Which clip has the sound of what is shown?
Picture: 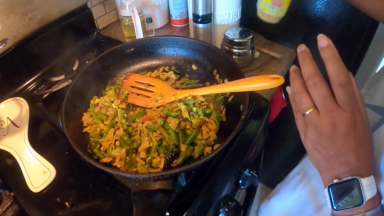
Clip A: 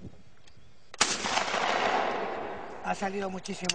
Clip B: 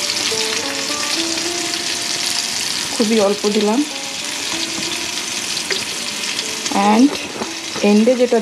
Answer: B